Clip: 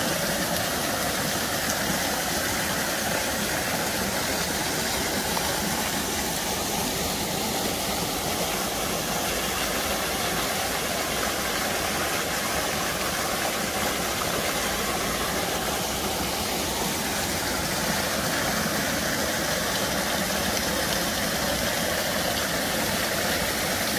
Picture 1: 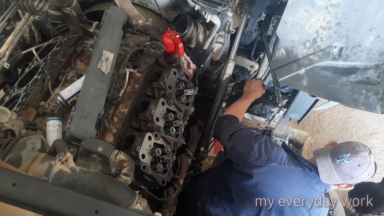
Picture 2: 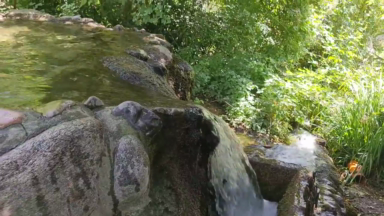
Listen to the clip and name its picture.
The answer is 2